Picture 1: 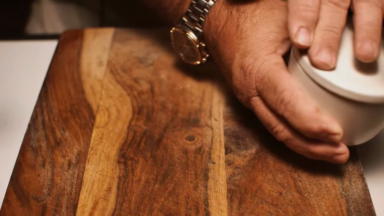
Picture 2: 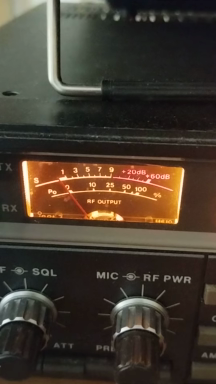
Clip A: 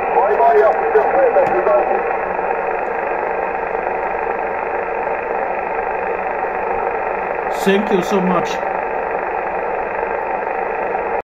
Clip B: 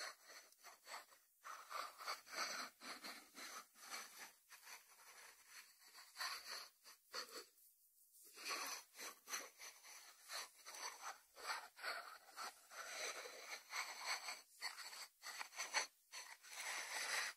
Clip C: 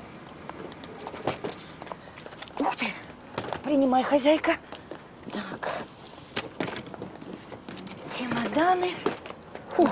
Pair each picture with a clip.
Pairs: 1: B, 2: A